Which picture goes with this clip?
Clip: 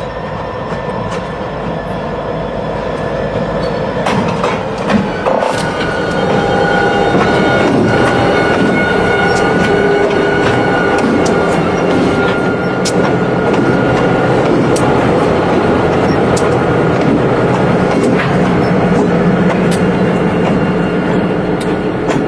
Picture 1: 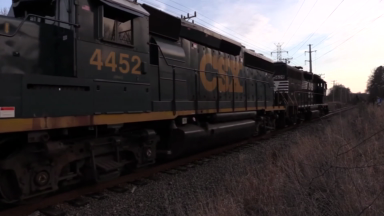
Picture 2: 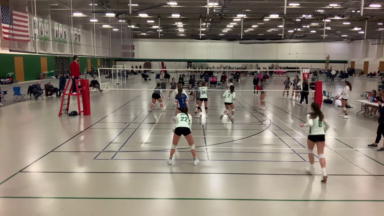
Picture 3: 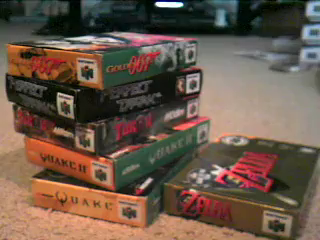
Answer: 1